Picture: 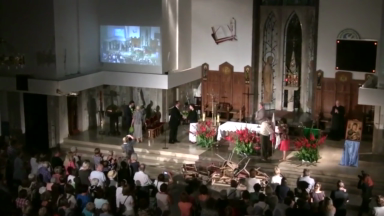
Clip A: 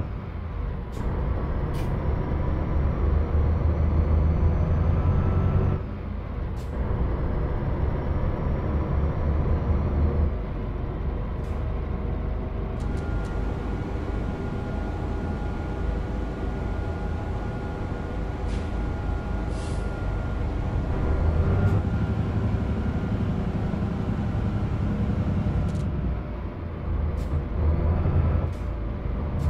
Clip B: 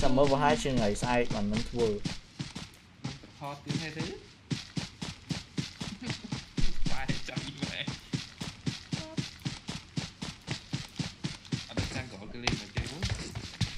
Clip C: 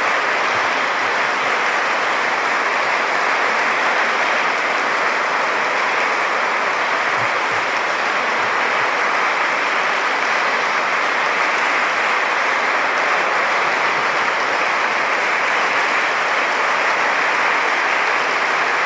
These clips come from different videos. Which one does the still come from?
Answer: C